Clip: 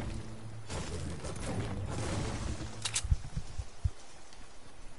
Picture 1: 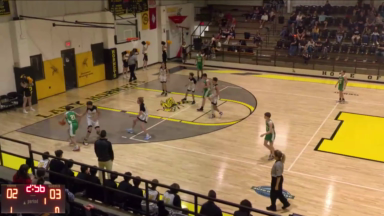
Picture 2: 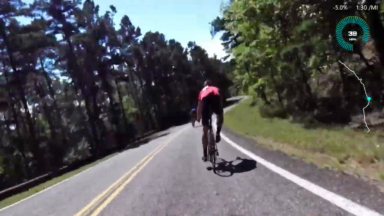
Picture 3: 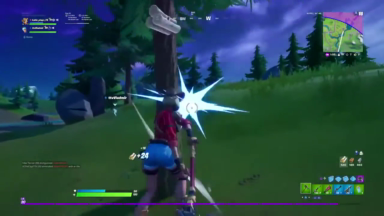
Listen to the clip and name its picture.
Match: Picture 3